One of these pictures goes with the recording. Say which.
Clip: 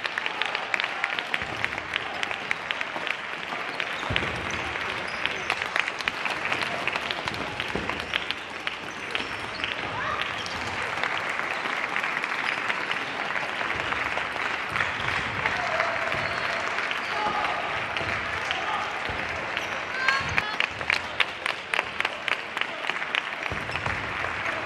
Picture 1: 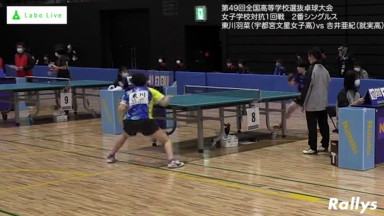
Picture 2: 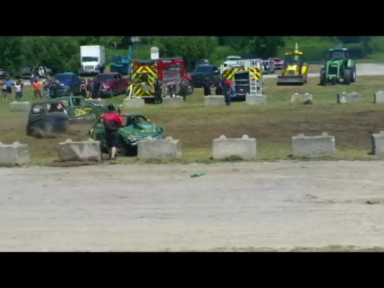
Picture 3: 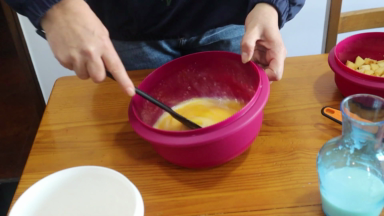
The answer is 1